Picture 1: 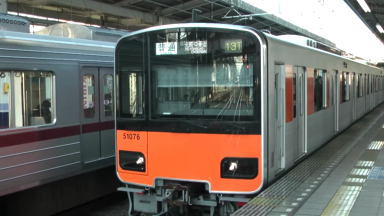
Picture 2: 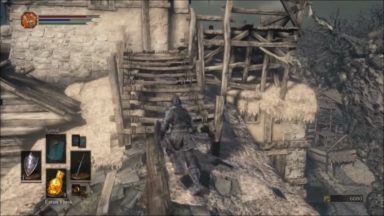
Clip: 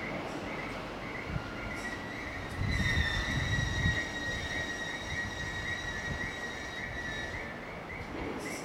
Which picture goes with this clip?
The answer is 1